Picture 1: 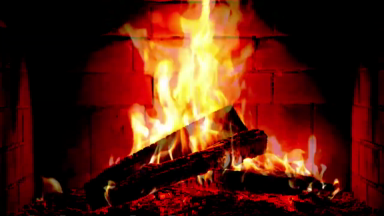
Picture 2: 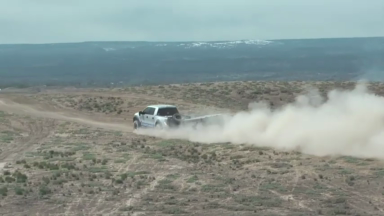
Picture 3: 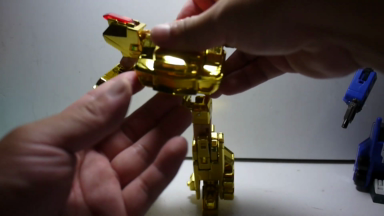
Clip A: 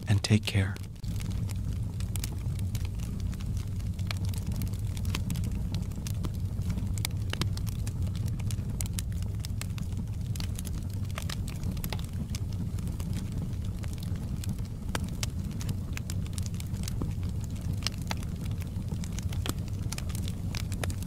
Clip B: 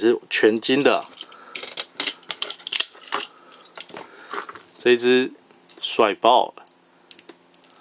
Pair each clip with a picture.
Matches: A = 1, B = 3